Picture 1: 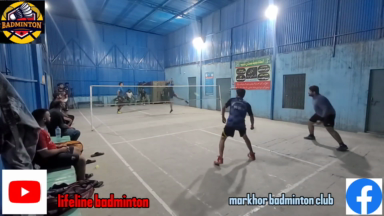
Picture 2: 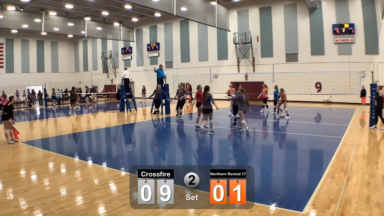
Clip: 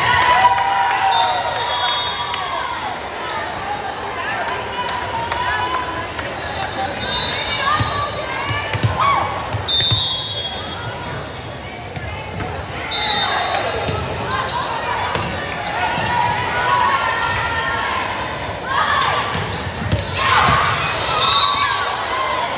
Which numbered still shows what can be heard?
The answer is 2